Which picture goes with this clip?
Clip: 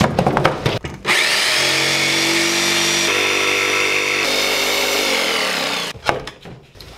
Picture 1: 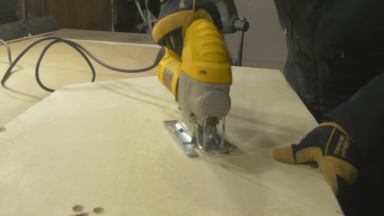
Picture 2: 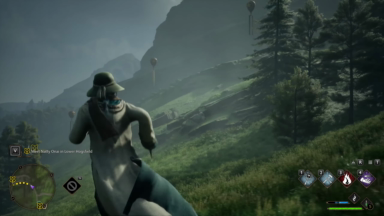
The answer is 1